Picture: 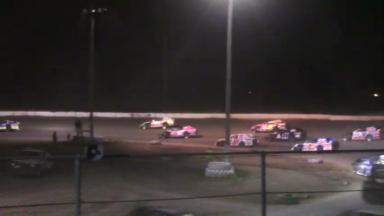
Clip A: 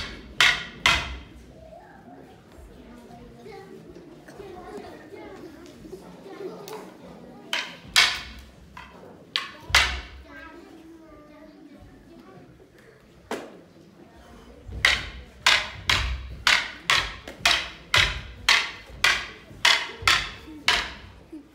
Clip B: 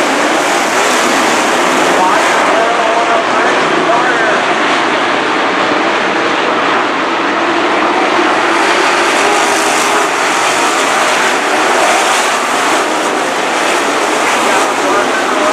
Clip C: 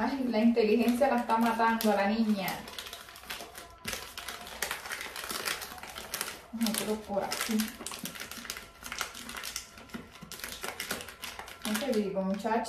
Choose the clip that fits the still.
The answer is B